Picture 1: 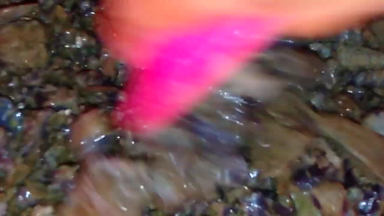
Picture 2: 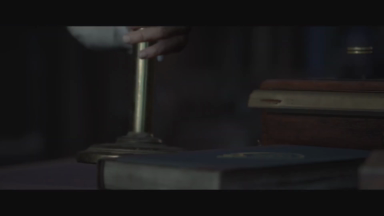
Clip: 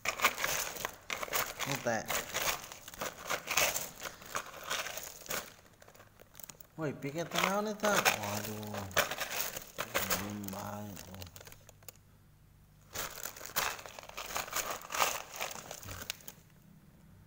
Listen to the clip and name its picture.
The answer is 1